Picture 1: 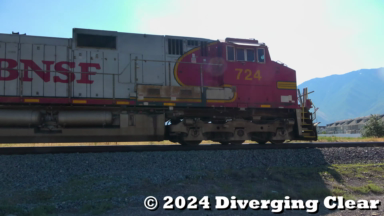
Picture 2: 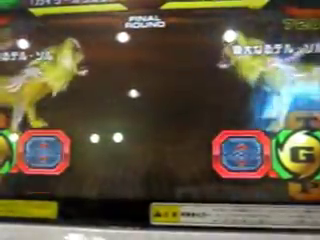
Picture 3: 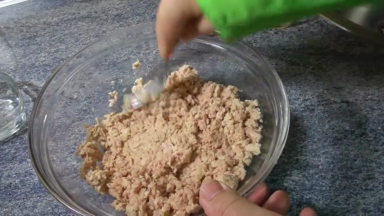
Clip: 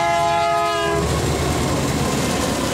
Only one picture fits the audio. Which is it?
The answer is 1